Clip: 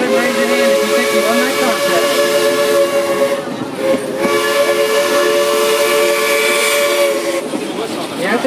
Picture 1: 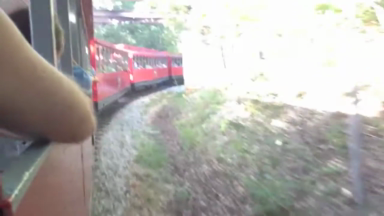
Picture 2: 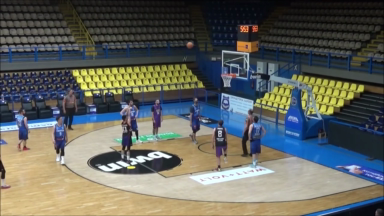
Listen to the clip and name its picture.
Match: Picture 1